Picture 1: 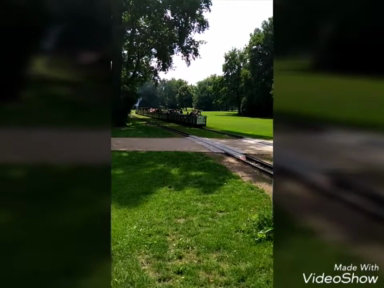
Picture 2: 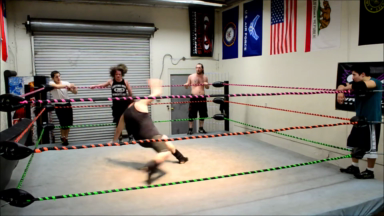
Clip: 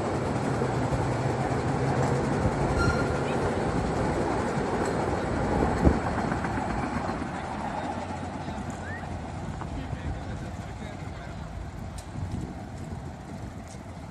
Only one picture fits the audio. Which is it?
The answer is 1